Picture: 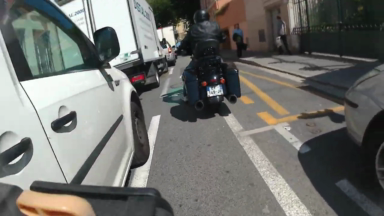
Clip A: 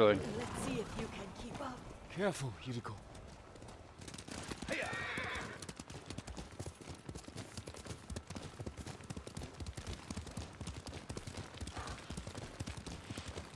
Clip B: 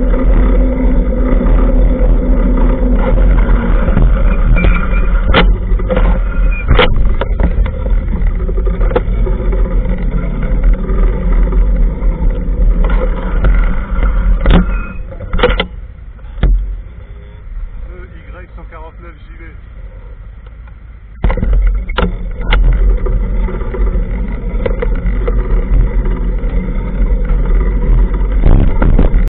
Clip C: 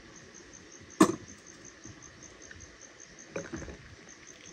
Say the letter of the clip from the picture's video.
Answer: B